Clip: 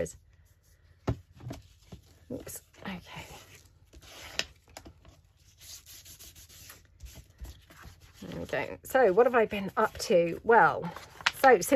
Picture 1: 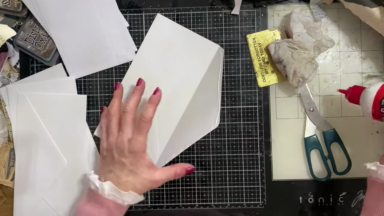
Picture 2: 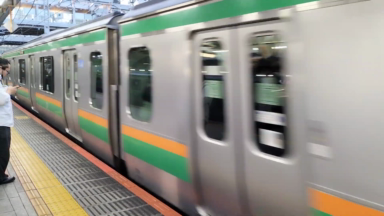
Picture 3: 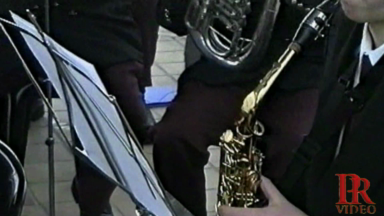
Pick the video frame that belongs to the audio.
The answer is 1